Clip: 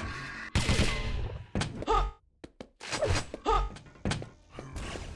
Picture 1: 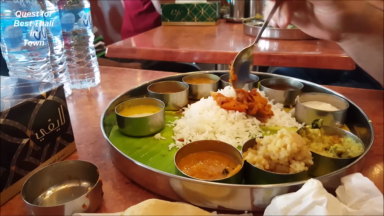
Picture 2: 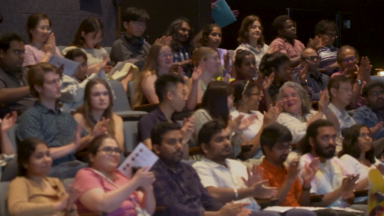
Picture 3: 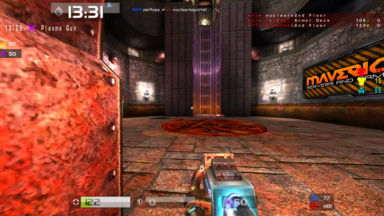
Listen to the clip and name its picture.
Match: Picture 3